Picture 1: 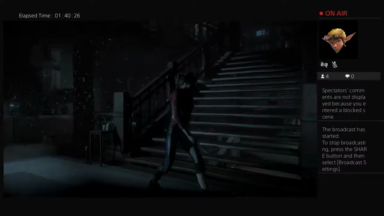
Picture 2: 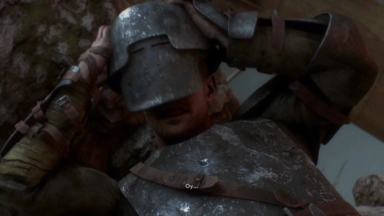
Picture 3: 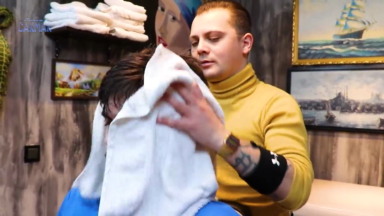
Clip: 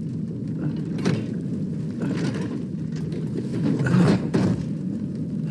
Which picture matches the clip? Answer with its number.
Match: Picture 2